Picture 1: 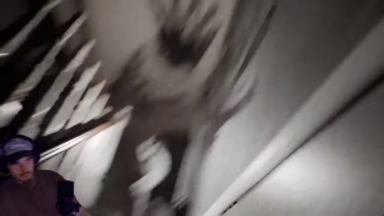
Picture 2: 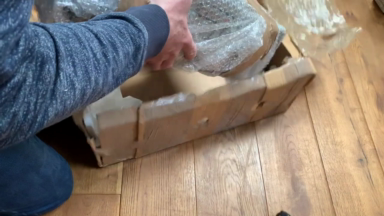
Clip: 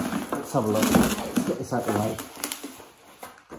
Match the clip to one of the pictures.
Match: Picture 2